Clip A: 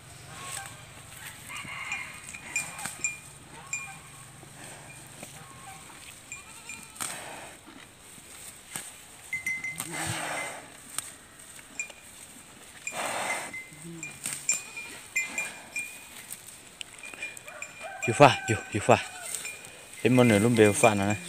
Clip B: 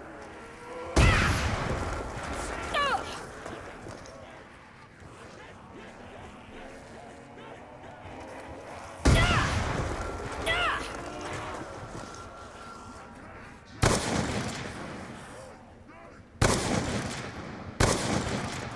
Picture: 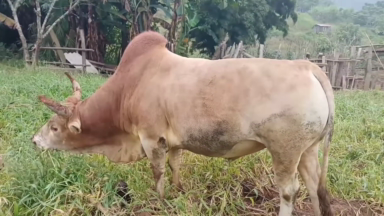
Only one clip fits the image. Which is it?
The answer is A